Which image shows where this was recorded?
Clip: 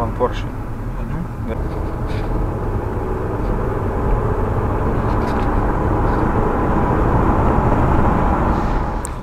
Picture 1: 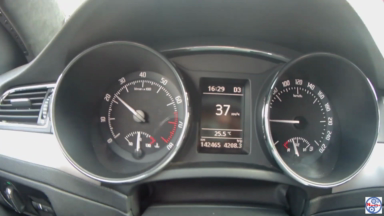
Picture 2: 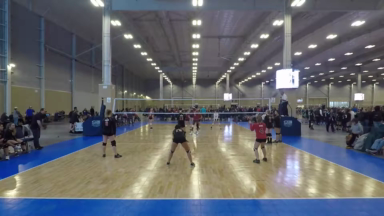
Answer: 1